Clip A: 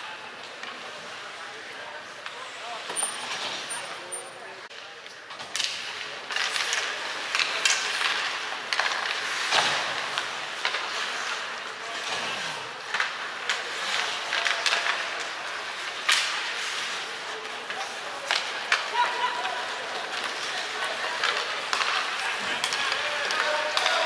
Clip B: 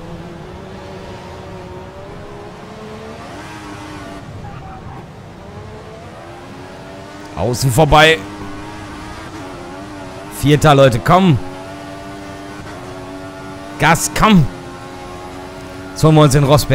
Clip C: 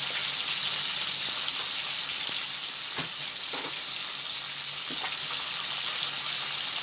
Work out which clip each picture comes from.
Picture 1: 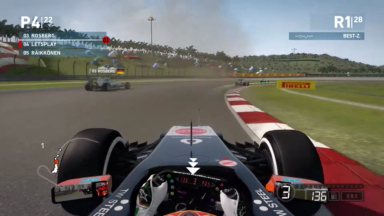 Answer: B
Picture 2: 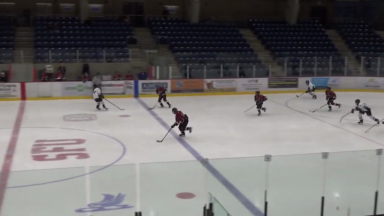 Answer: A